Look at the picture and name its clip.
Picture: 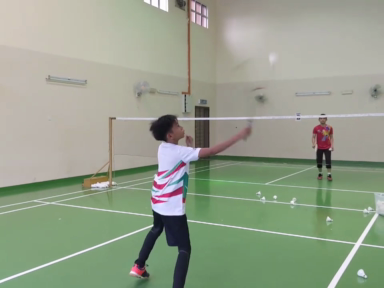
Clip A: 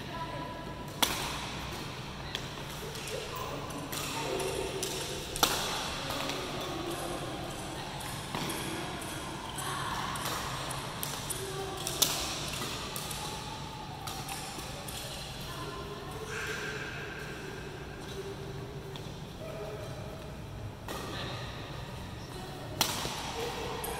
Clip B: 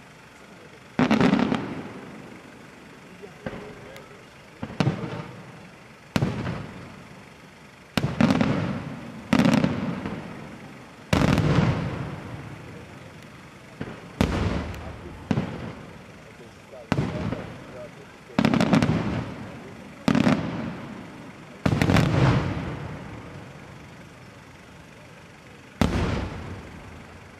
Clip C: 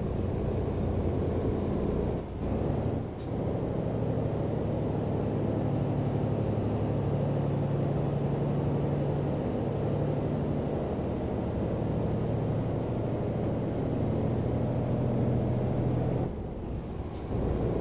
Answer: A